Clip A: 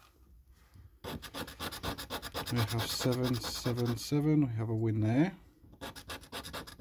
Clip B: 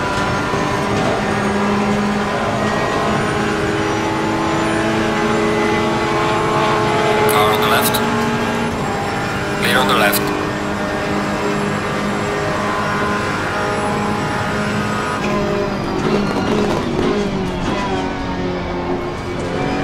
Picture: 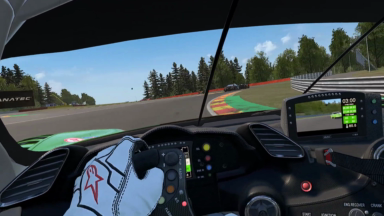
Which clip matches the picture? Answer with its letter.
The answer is B